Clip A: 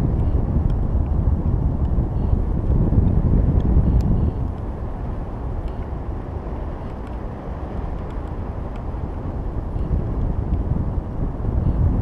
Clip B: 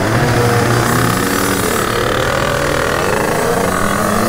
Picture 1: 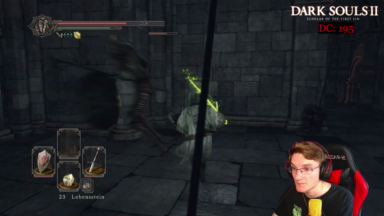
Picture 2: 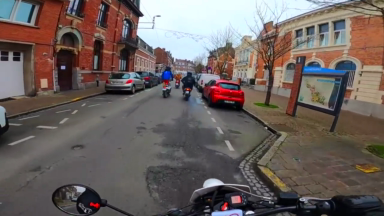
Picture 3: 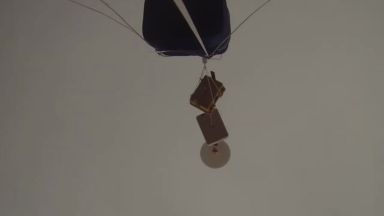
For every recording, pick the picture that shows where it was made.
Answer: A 3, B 2